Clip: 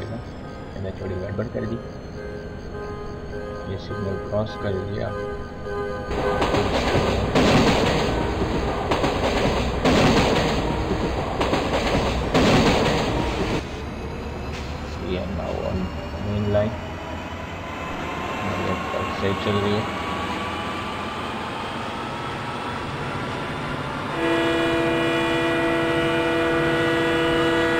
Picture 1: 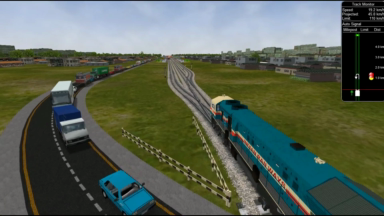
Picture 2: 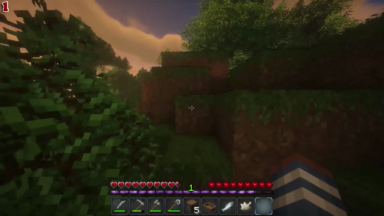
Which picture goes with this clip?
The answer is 1